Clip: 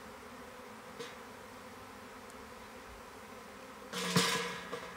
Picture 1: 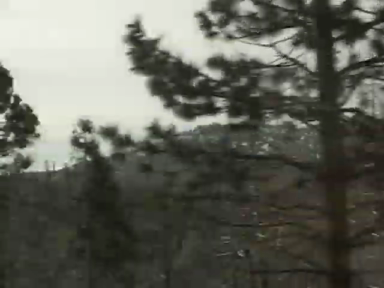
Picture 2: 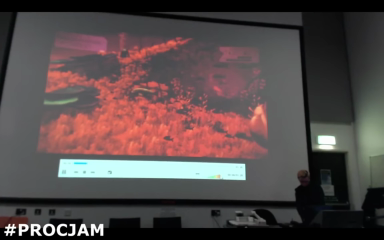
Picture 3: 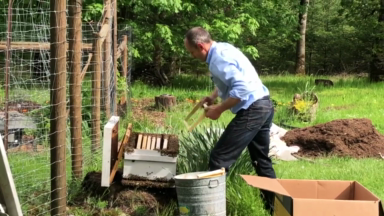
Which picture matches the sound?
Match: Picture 3